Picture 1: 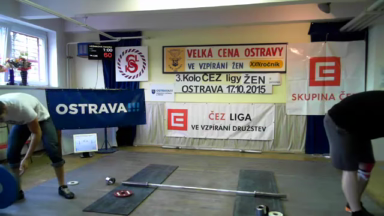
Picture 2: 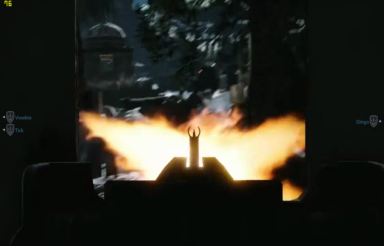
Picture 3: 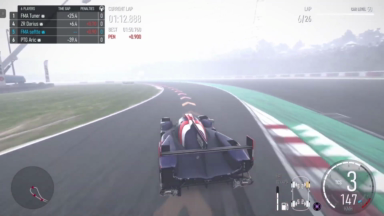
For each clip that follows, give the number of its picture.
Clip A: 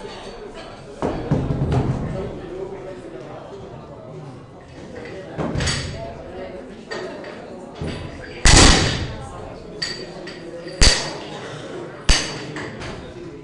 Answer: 1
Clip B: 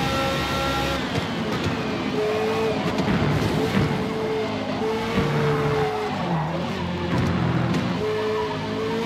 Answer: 3